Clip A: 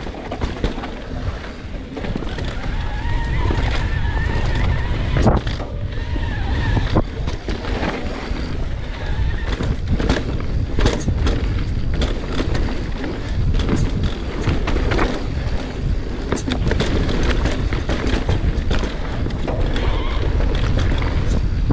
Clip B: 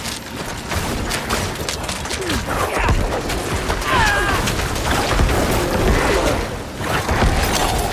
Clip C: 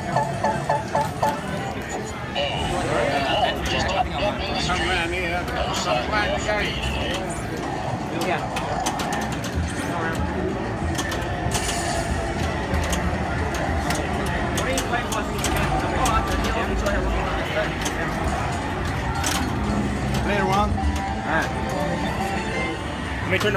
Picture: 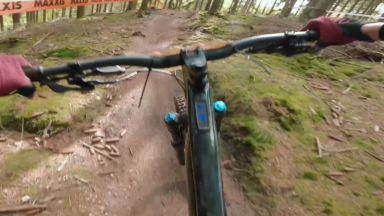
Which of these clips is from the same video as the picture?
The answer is A